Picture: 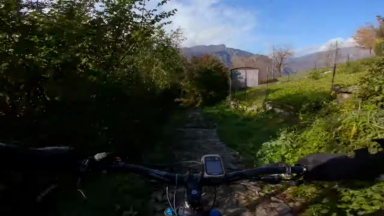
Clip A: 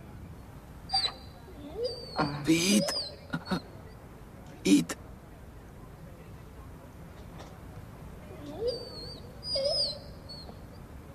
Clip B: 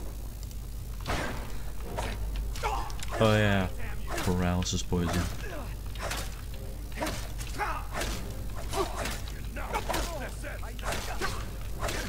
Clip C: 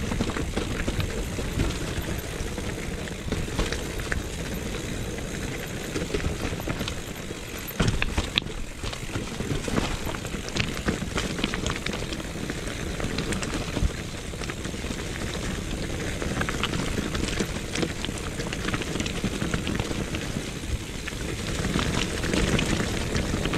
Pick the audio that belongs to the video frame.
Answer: C